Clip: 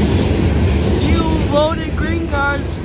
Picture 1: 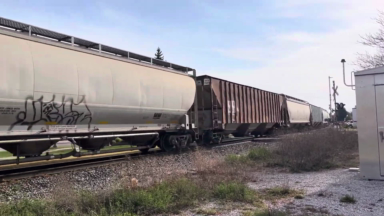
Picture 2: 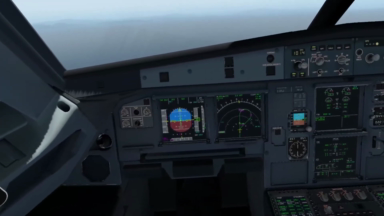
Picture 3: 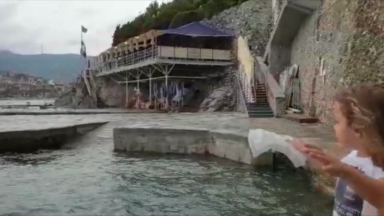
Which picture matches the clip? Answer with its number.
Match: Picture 1